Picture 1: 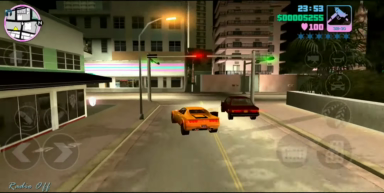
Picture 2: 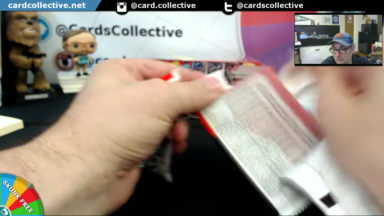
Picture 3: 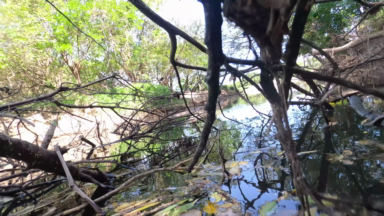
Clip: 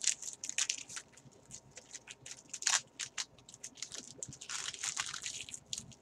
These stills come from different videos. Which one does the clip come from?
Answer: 2